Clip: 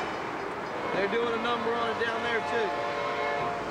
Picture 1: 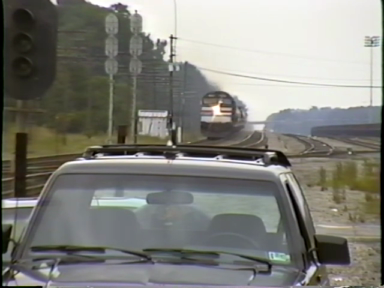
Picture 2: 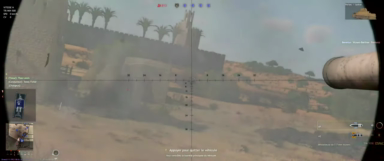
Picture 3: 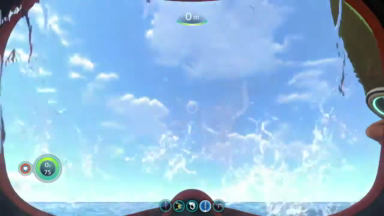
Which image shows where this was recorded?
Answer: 1